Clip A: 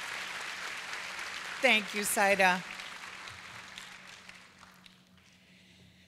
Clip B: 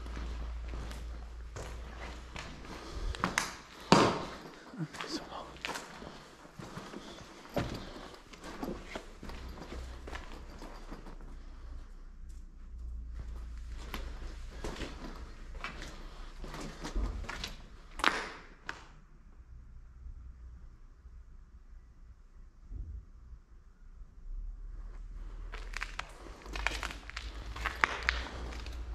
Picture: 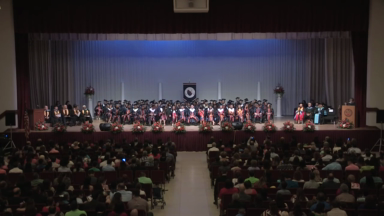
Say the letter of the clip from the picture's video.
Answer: A